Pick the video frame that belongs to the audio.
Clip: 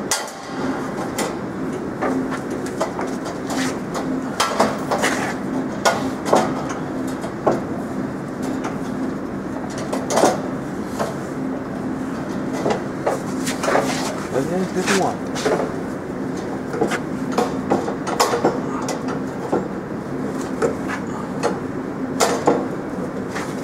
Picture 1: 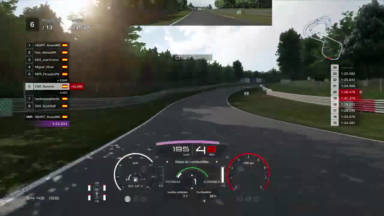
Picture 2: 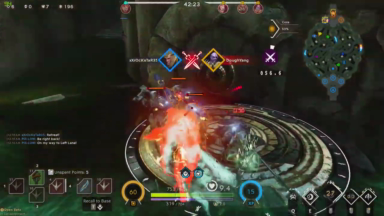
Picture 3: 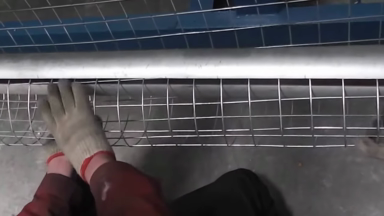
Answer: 3